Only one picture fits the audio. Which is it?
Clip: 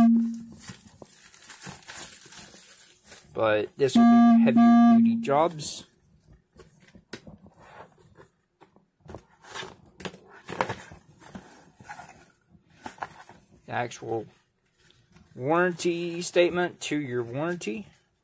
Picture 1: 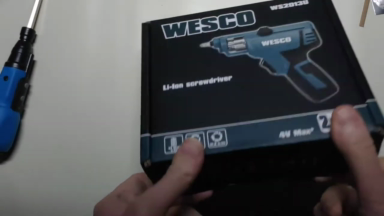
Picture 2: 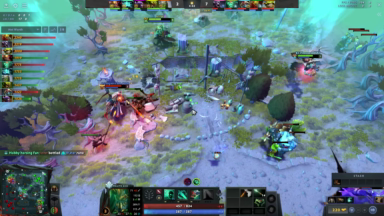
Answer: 1